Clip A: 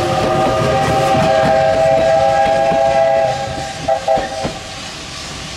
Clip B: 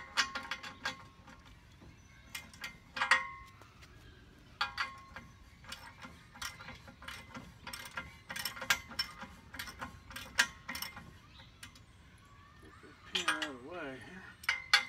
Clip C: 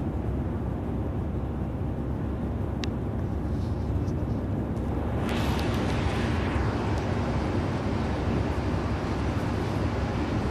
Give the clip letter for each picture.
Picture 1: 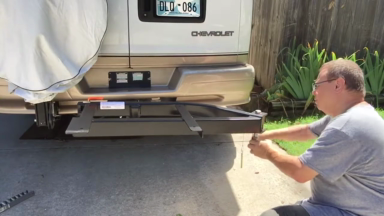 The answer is B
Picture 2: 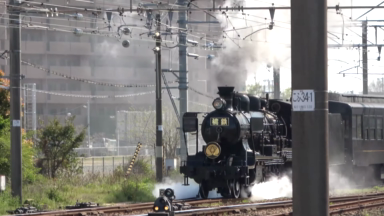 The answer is A